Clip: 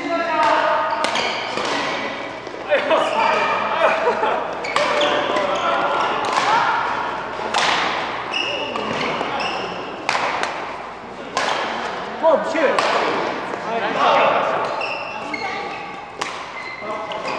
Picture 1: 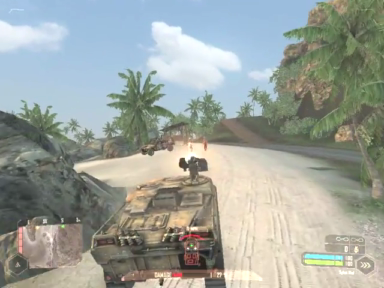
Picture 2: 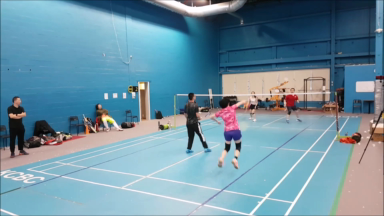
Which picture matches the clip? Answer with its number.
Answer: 2